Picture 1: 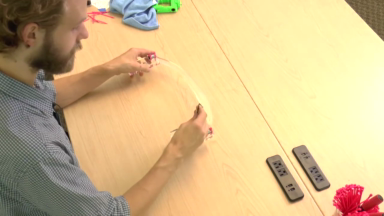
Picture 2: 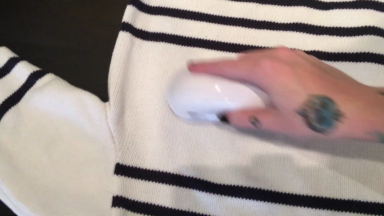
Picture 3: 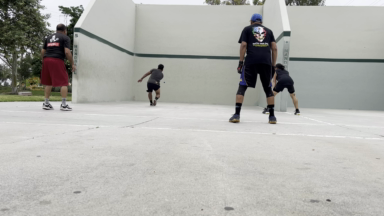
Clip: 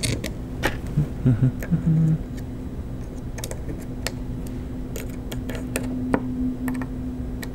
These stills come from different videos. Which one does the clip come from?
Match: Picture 1